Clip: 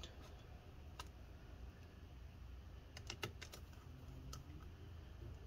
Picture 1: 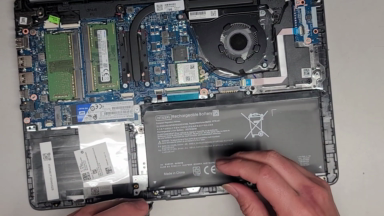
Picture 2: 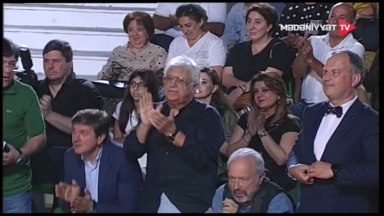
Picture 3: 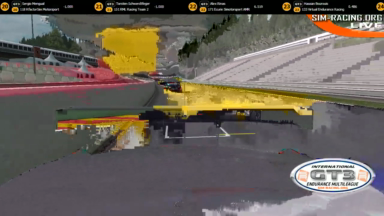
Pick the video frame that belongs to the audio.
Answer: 1